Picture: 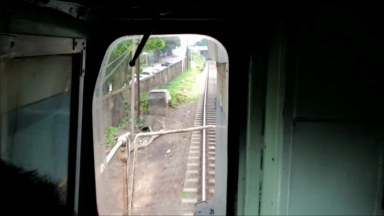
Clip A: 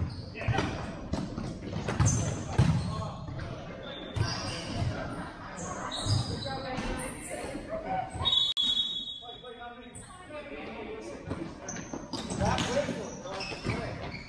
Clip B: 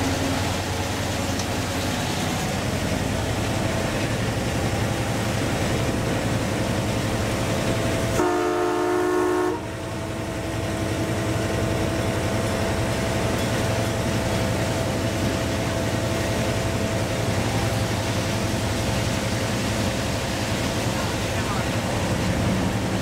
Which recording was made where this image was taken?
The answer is B